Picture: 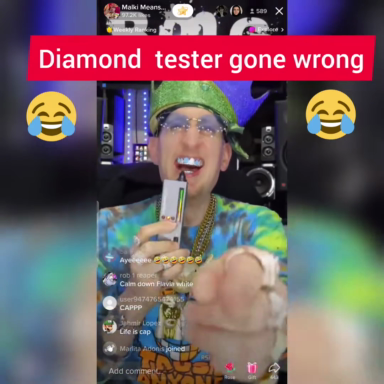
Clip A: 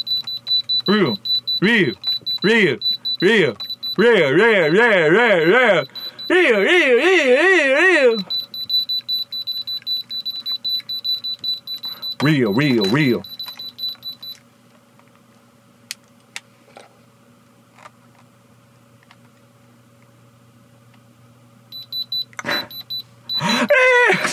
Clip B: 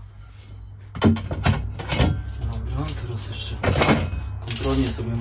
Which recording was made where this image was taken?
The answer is A